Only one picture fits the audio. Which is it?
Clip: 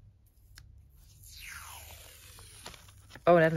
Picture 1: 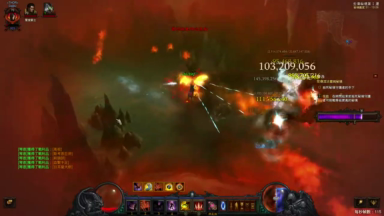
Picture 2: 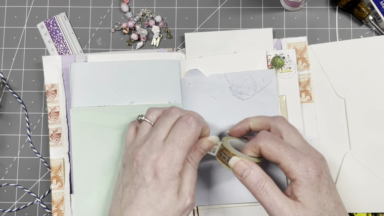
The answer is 2